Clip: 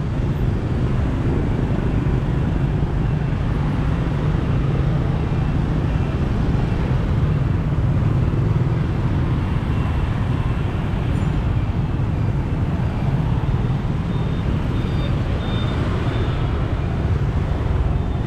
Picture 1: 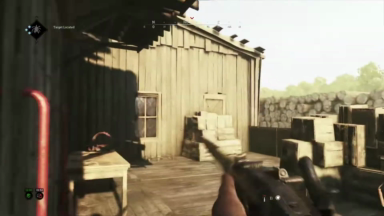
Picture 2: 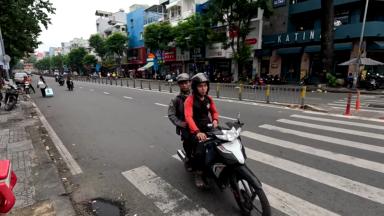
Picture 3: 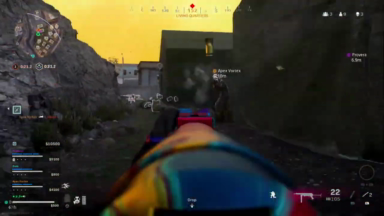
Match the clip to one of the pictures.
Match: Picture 2